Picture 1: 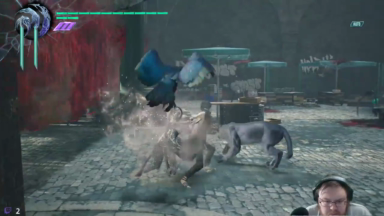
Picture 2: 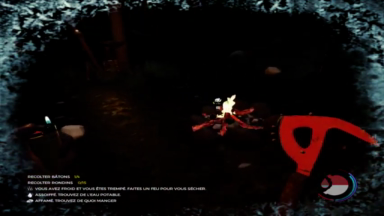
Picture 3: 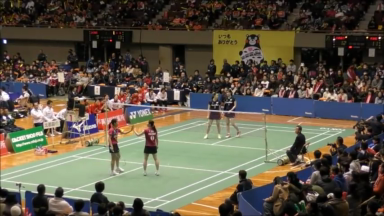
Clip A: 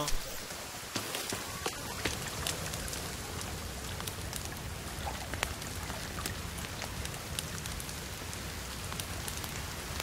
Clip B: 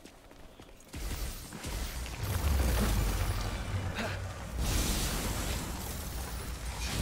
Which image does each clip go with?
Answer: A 2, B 1